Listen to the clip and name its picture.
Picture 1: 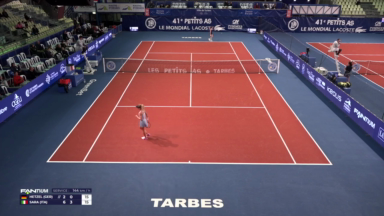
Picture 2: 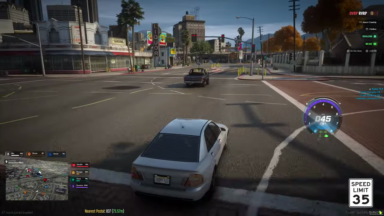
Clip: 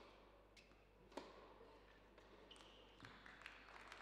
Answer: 1